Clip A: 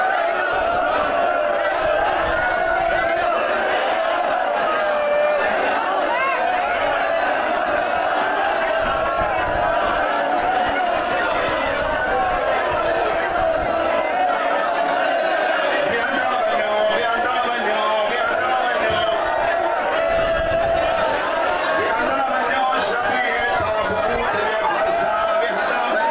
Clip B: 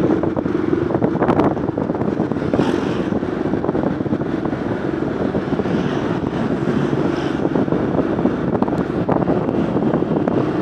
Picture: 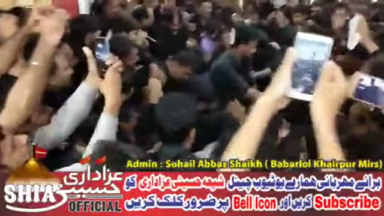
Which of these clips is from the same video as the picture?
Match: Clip A